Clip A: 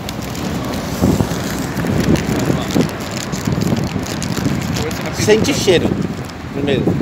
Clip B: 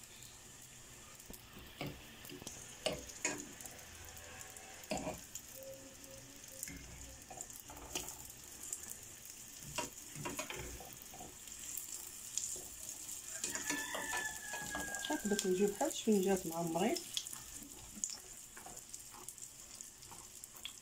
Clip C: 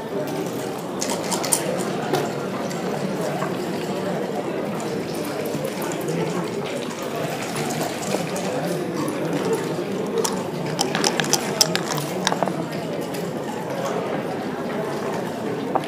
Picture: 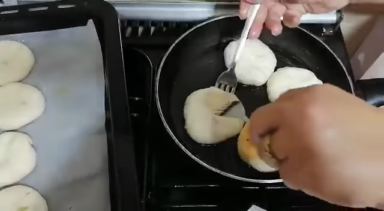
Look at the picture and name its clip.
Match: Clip B